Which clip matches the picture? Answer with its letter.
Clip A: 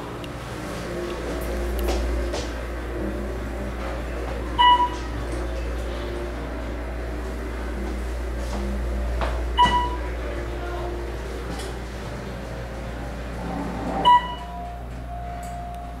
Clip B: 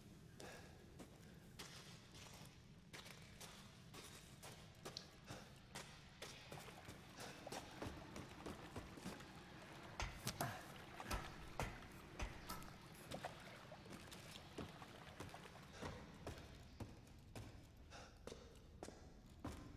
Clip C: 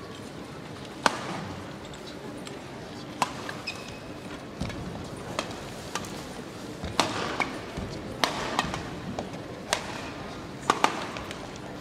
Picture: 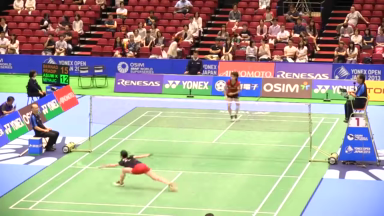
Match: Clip C